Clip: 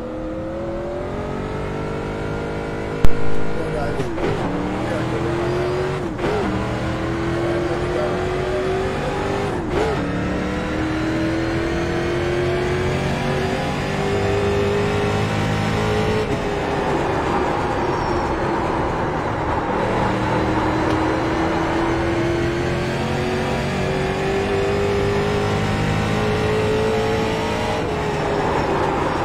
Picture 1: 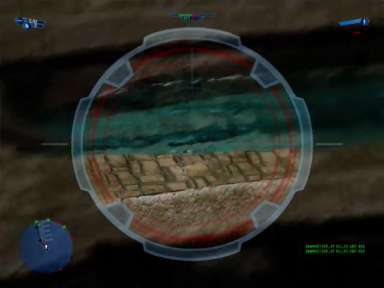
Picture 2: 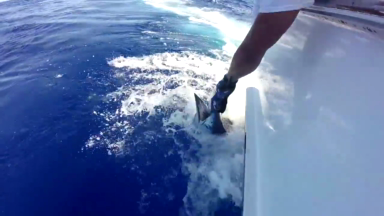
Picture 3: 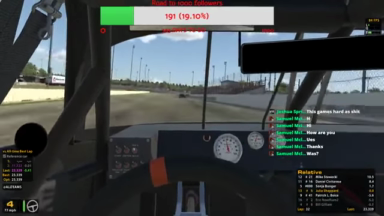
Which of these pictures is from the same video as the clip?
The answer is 3